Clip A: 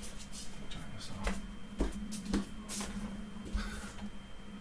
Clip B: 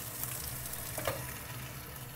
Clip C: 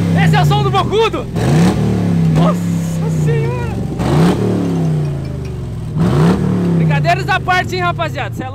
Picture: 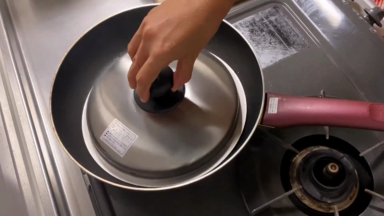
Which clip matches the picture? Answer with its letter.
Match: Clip B